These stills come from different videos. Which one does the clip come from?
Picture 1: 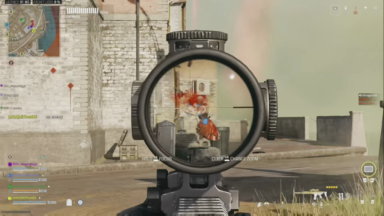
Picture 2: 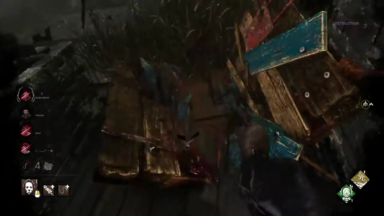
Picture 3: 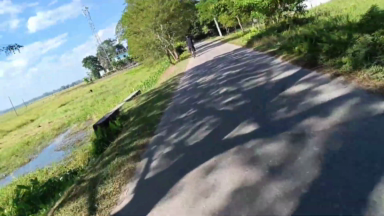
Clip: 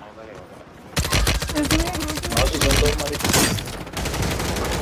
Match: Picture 1